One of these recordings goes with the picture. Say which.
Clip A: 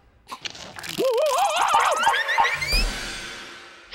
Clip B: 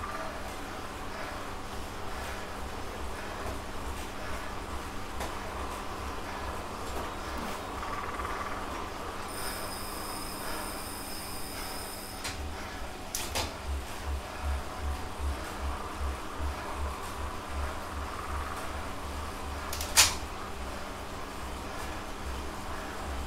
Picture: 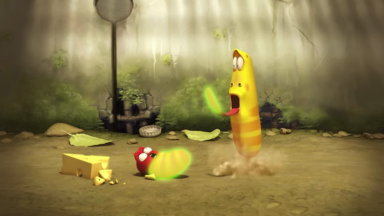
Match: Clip A